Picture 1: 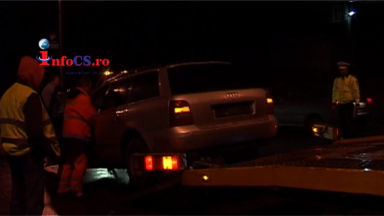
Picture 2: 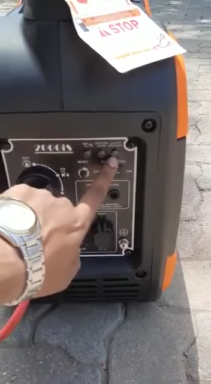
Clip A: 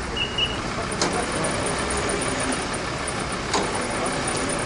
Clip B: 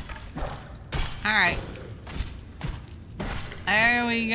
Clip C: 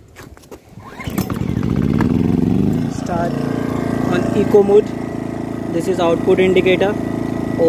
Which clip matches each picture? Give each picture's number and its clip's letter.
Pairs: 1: A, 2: C